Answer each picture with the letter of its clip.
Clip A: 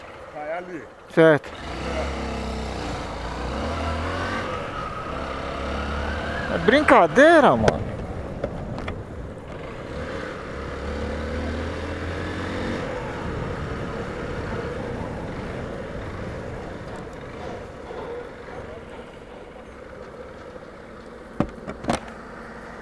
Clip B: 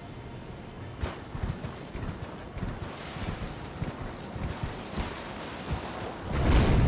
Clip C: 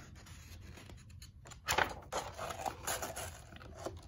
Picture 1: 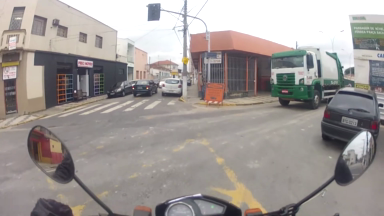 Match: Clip A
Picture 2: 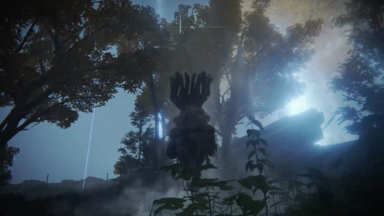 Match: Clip B